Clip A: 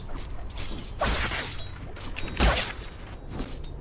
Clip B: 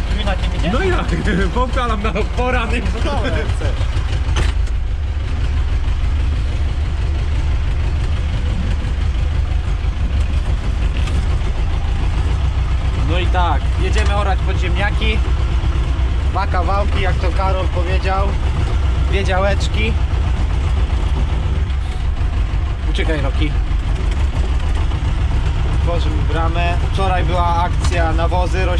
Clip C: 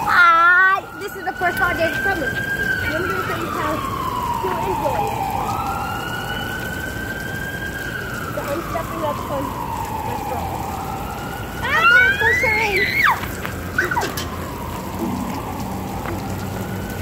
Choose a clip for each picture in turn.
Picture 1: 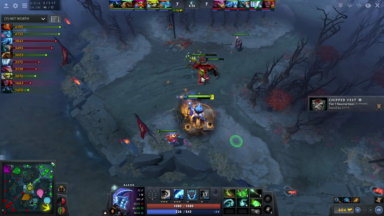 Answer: A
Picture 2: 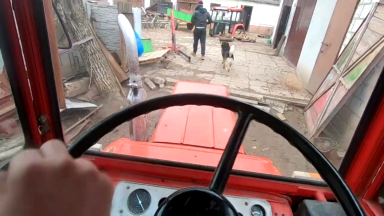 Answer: B